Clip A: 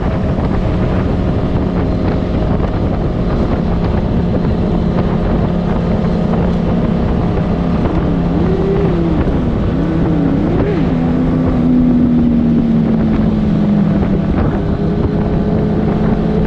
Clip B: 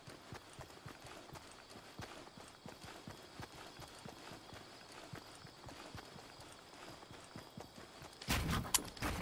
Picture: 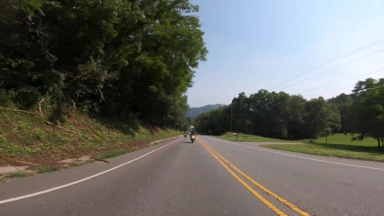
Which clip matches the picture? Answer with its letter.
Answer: A